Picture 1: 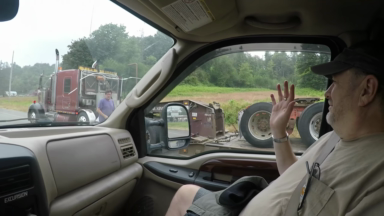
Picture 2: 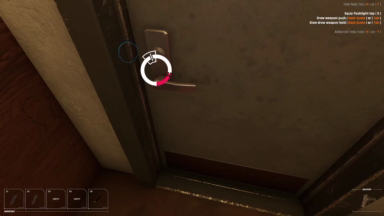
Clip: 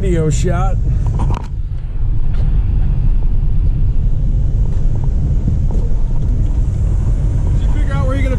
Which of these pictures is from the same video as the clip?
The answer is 1